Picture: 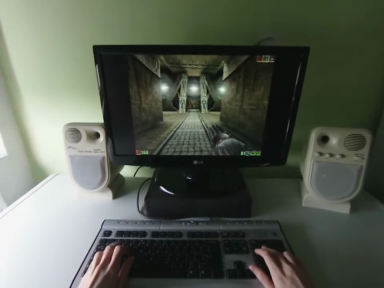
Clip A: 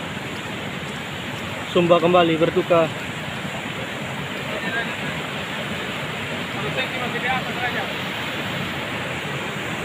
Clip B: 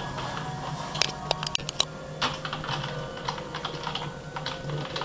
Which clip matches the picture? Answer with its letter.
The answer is B